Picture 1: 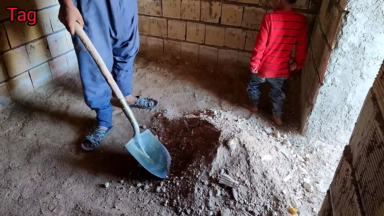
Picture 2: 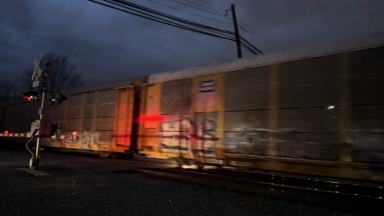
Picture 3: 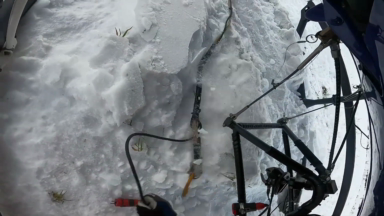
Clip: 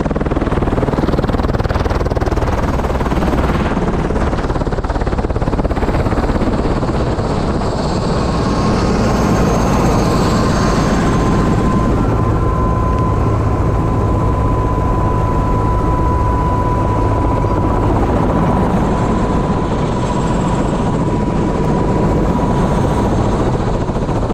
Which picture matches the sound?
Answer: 3